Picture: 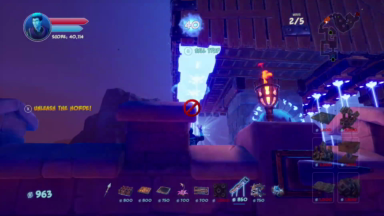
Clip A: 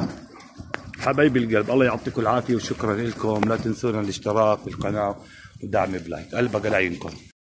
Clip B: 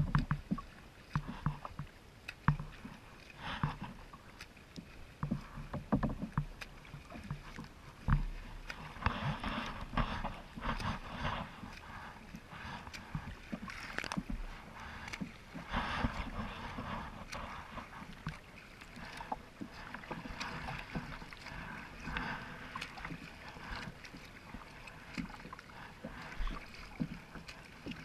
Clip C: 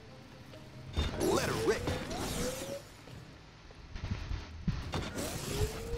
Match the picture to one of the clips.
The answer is C